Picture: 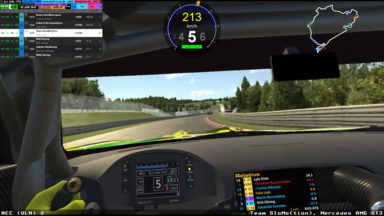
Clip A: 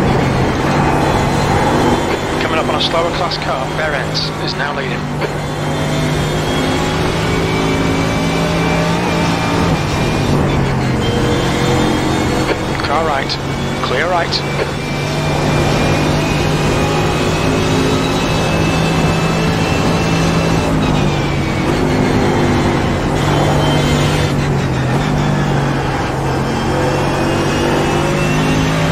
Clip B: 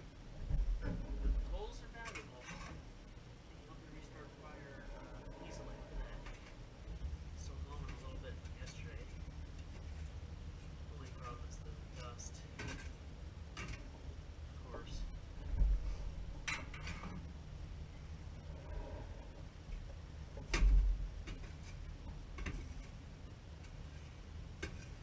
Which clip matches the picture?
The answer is A